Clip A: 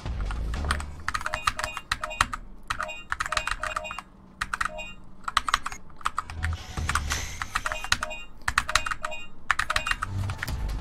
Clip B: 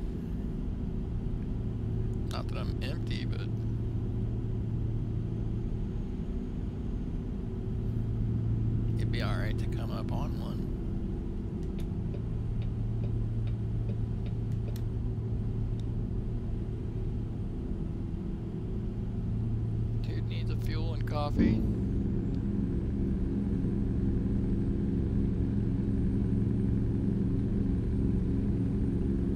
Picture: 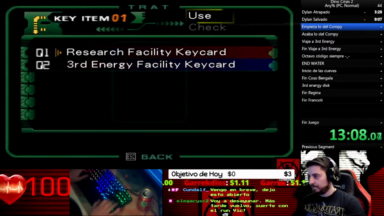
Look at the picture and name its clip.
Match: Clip A